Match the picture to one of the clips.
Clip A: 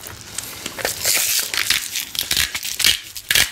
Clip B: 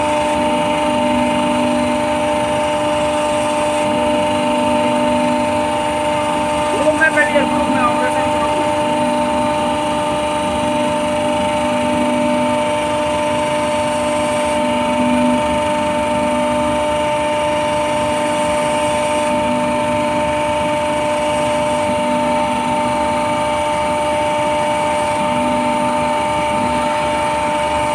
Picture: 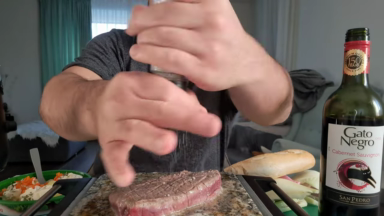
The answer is A